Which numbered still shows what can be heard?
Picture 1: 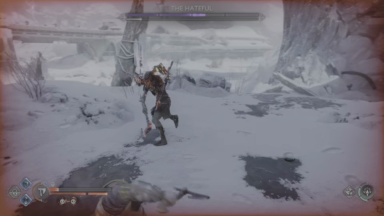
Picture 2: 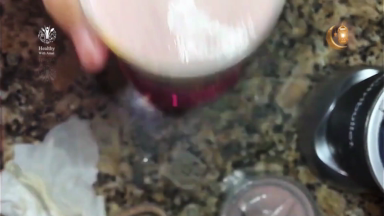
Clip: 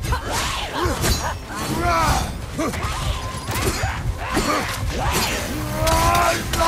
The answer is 1